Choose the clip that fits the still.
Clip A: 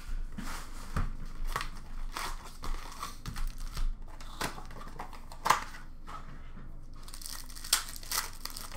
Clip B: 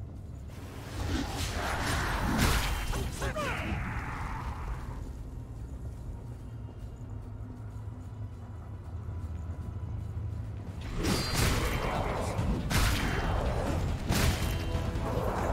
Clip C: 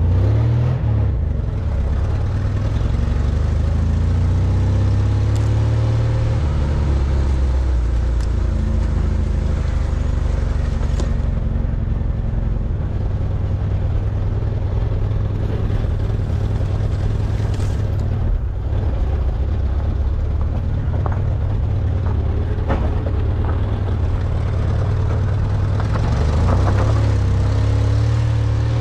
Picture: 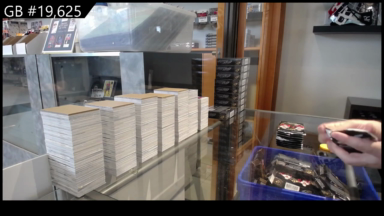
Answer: A